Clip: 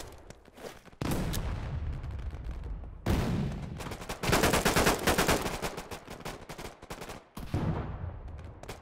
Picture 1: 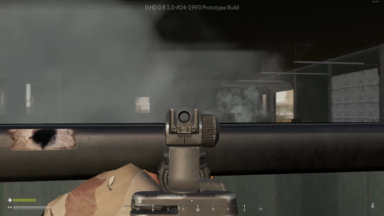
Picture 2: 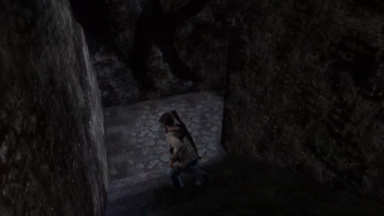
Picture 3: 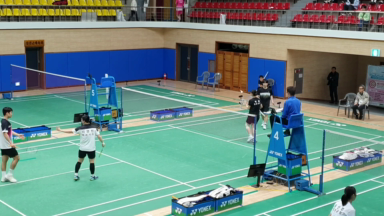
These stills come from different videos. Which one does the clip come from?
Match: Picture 1